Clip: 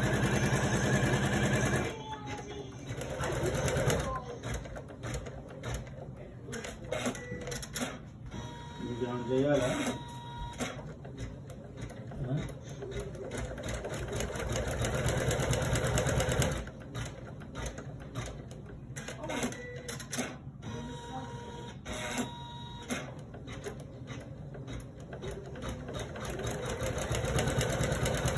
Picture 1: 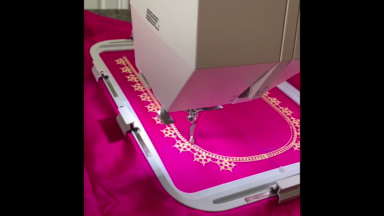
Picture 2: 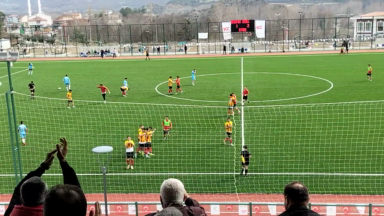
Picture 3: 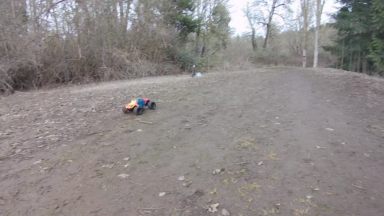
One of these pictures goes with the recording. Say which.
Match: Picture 1